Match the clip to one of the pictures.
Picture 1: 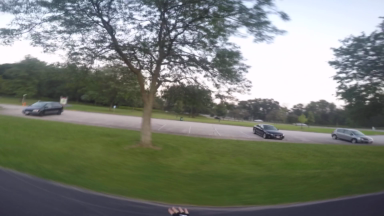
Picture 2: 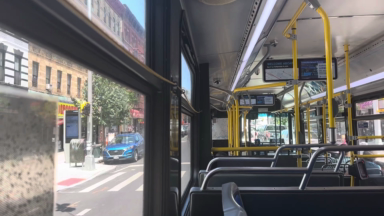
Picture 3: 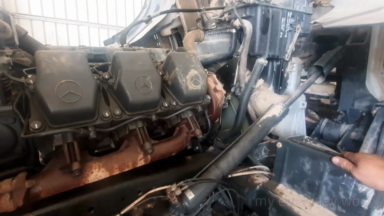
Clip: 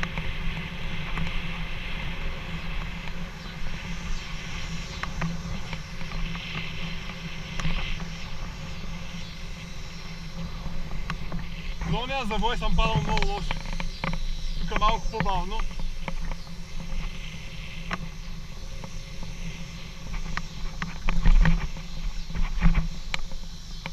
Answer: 1